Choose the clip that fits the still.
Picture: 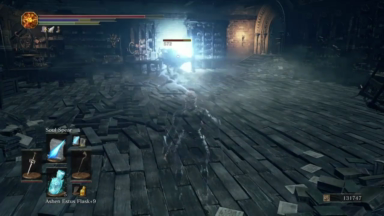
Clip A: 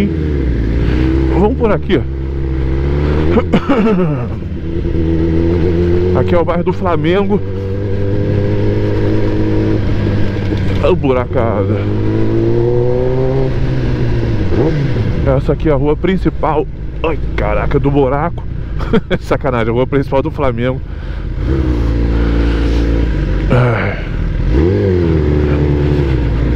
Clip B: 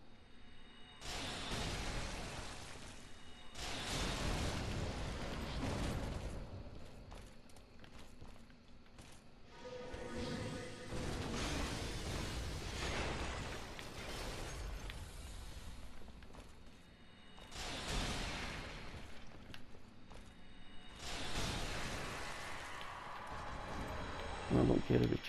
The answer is B